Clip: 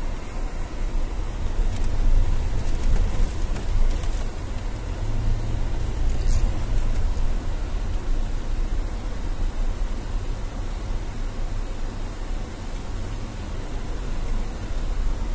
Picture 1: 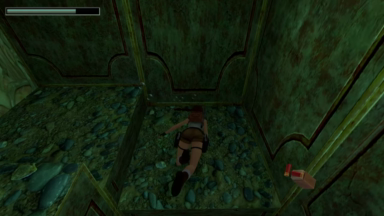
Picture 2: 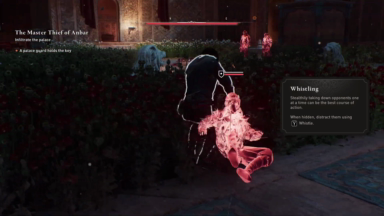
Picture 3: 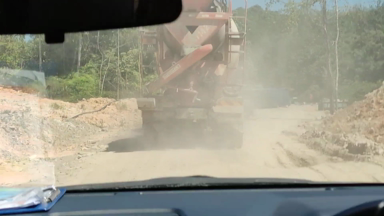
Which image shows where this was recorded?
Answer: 3